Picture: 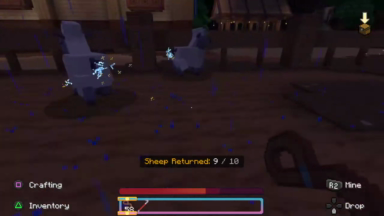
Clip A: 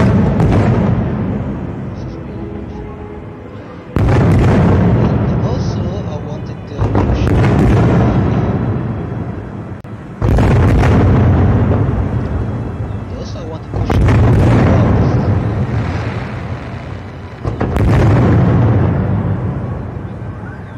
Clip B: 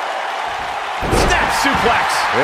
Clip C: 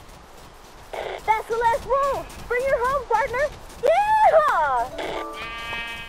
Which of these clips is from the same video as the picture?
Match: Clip C